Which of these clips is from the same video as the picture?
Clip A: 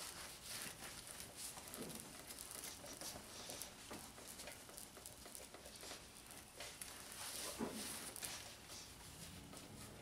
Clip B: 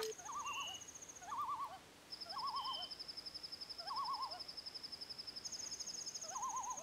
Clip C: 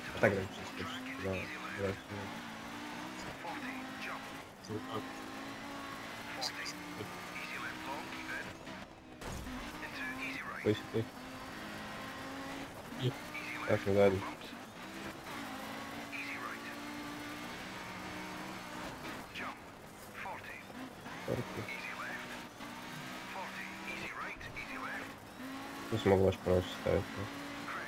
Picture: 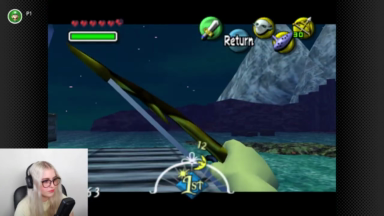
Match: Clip B